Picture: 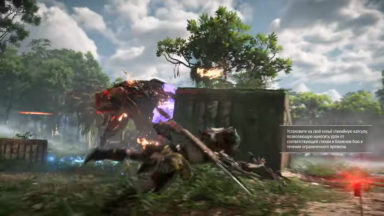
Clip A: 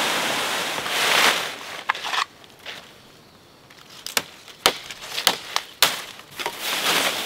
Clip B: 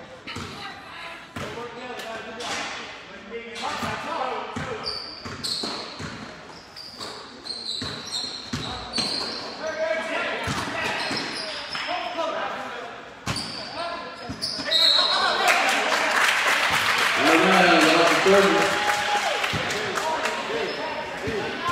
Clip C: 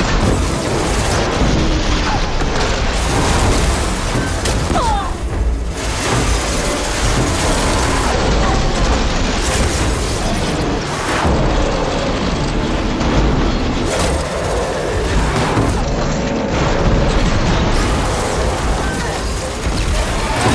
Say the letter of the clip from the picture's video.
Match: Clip C